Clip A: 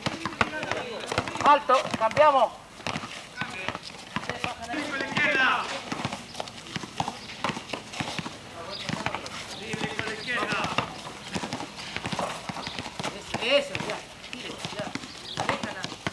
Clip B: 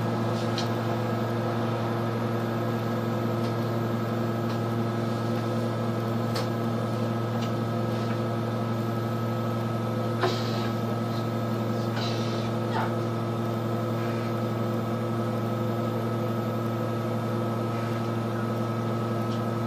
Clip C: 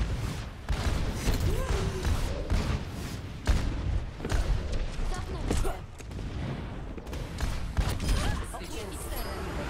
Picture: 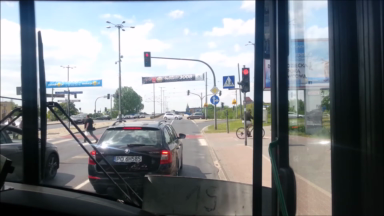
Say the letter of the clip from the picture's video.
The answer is B